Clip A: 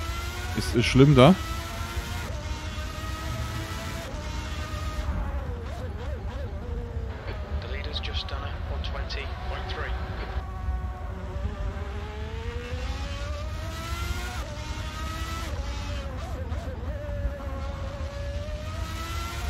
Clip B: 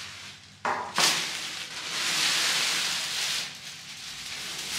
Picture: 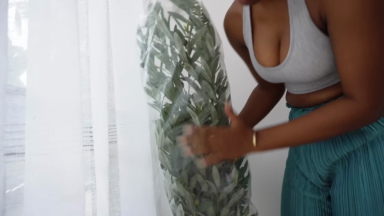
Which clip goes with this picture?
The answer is B